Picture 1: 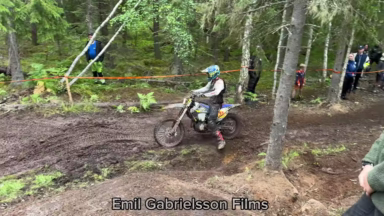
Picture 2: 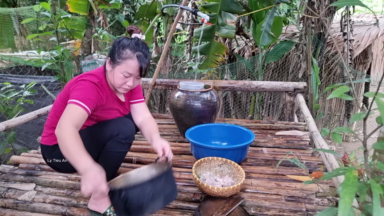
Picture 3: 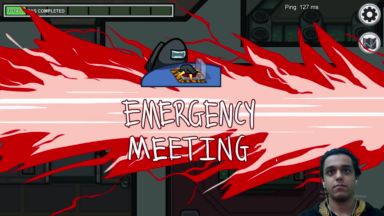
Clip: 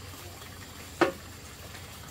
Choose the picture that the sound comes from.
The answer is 2